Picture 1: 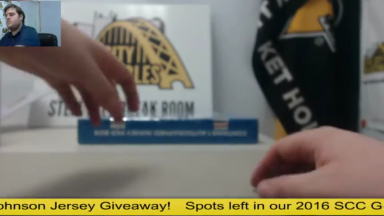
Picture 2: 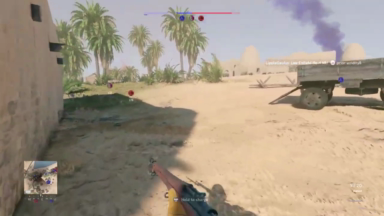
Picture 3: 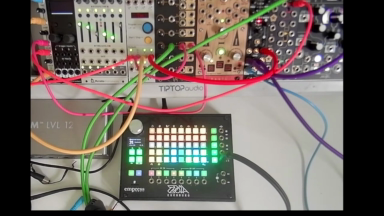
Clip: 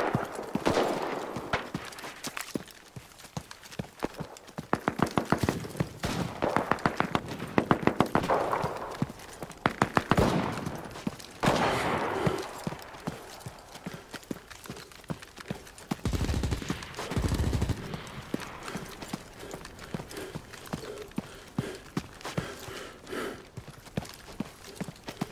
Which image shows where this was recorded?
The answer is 2